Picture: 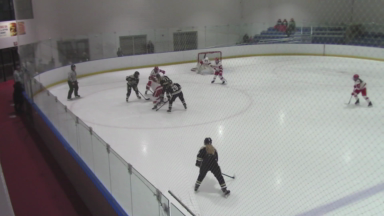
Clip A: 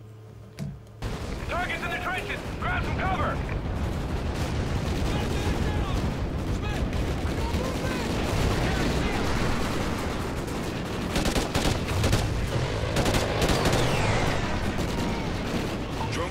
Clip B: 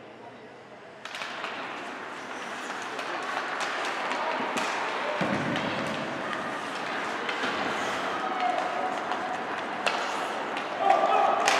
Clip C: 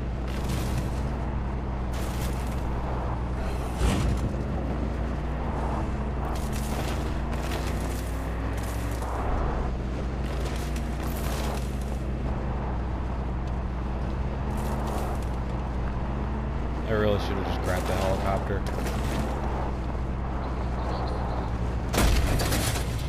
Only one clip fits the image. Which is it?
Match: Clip B